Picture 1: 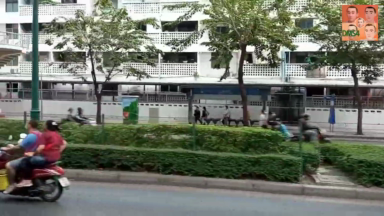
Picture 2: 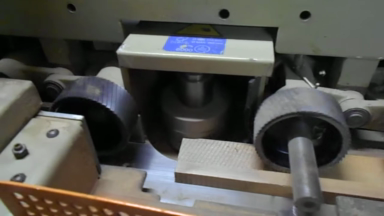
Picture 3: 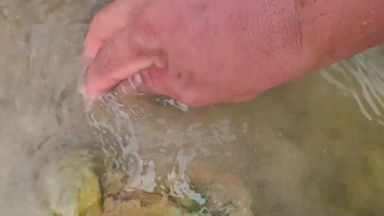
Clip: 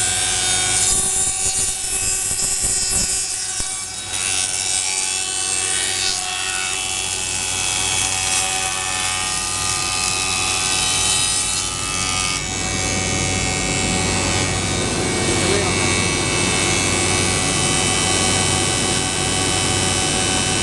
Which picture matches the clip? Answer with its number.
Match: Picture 2